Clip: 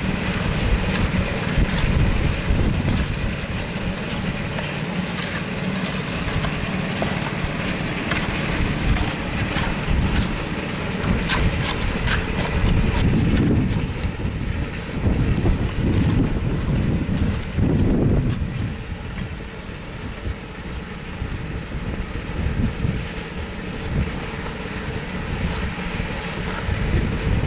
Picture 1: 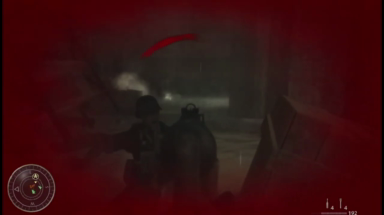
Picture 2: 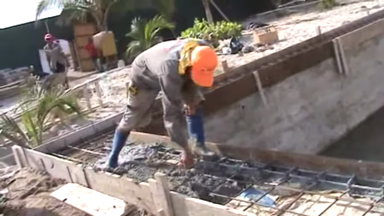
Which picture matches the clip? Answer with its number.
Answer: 2